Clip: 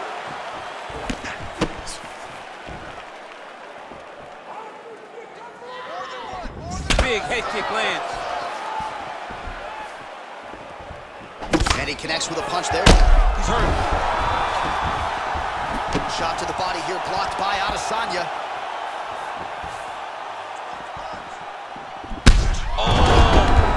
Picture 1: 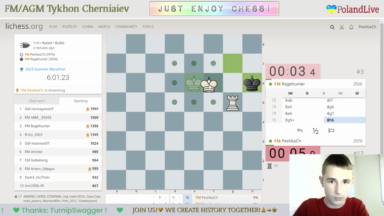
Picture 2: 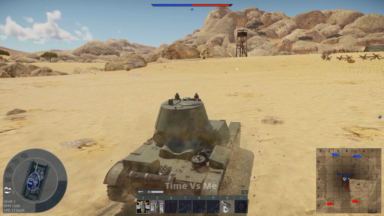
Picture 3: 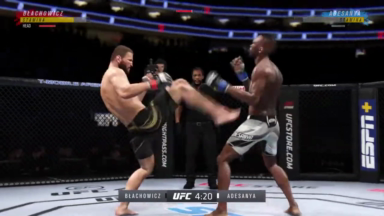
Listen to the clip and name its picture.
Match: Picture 3